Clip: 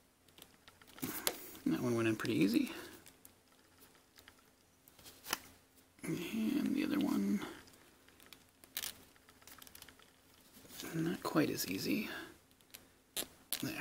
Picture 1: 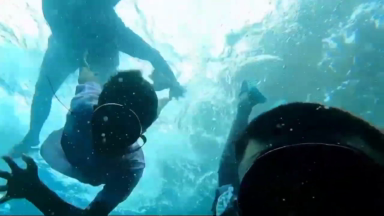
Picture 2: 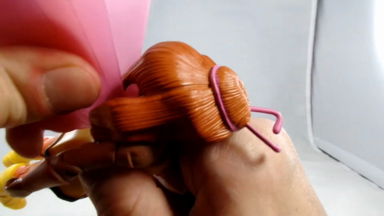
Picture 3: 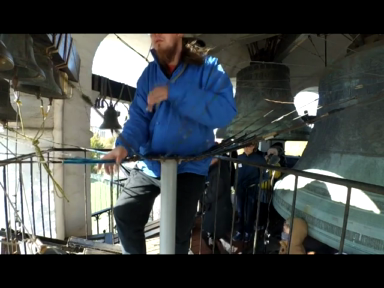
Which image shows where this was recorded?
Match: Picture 2